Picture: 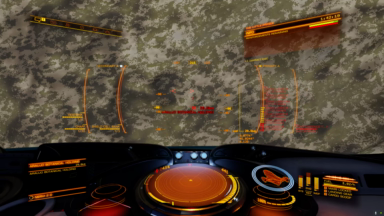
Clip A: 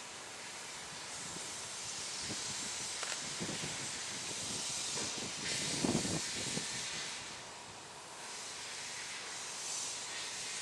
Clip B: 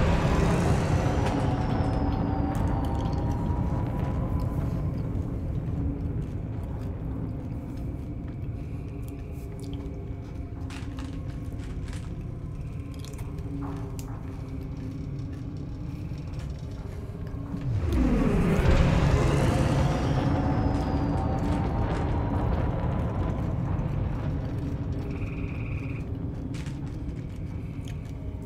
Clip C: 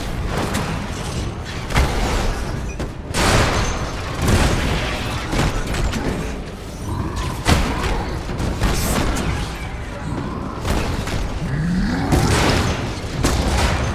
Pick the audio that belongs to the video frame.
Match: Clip B